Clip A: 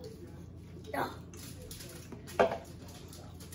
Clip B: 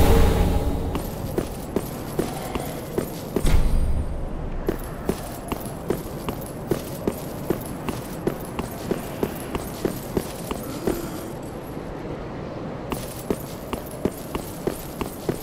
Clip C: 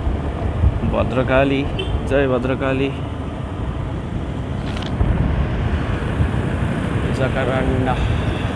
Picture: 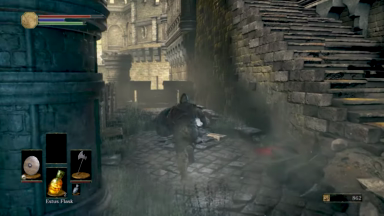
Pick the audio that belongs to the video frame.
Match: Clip B